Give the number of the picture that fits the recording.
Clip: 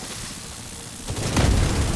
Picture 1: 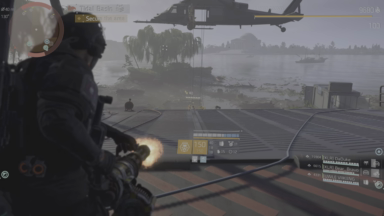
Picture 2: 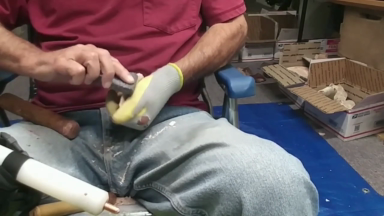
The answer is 1